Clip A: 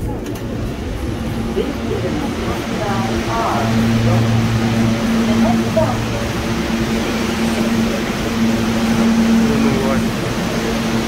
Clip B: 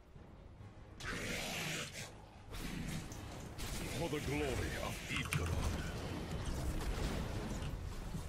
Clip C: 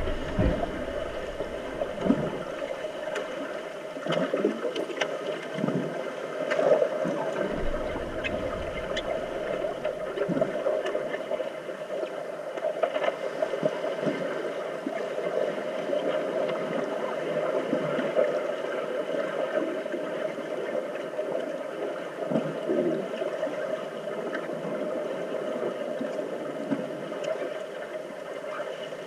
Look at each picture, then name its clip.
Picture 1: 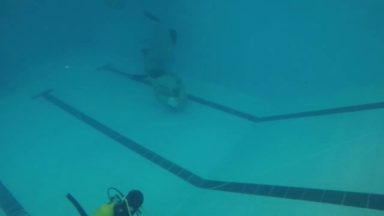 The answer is C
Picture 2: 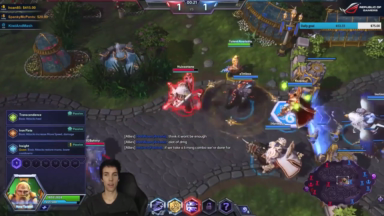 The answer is B